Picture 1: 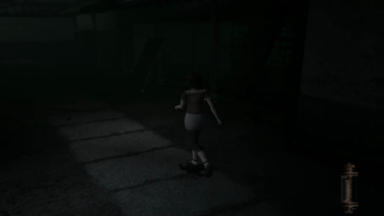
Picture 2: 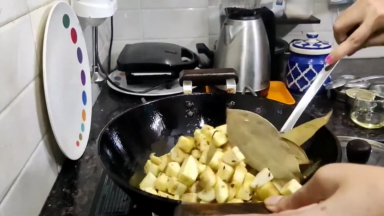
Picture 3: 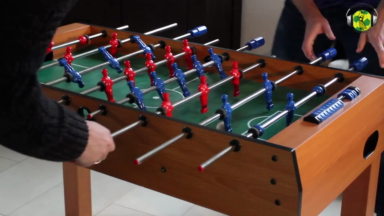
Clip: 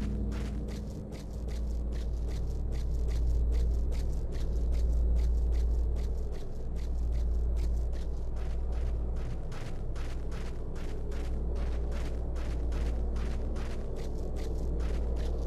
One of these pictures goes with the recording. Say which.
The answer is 1